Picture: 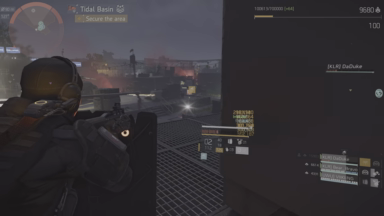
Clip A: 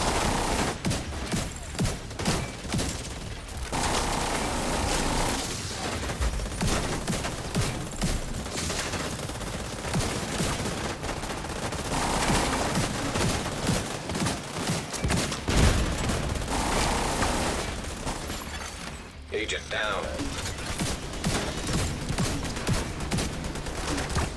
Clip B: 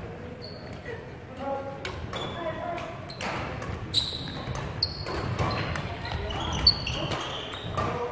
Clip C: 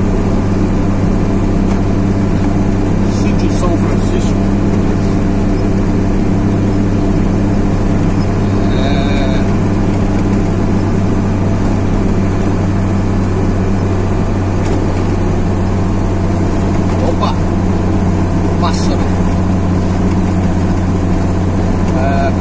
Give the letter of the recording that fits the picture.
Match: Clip A